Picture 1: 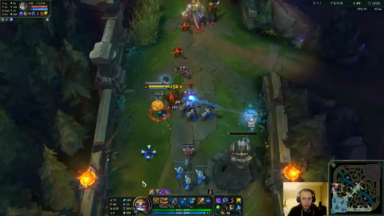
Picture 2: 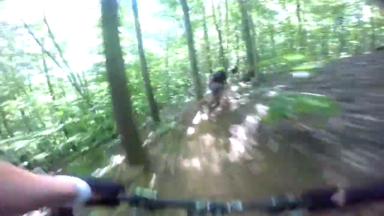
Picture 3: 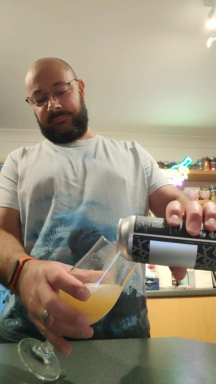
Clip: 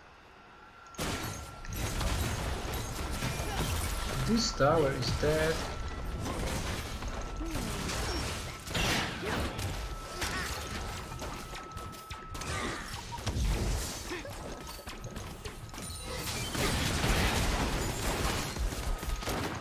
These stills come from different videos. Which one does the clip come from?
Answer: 1